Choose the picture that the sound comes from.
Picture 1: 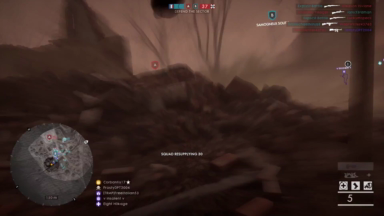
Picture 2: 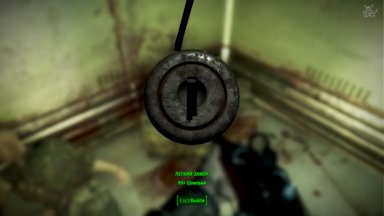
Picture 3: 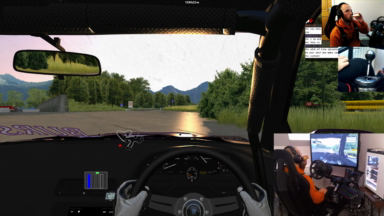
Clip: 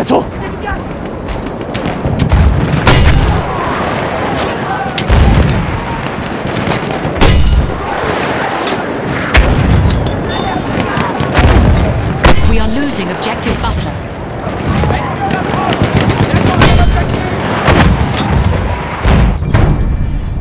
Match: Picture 1